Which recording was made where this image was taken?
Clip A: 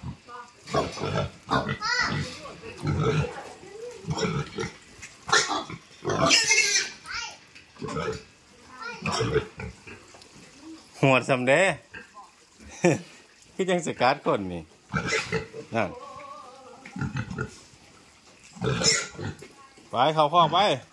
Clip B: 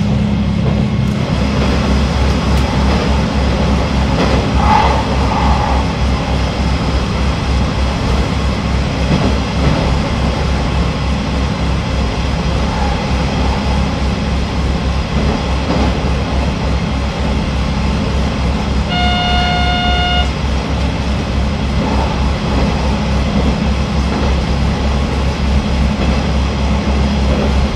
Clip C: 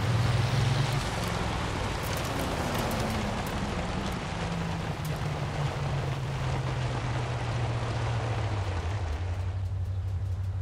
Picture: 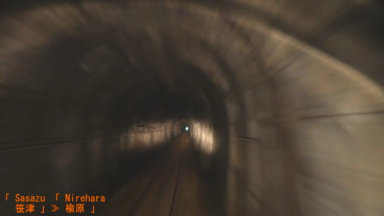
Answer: B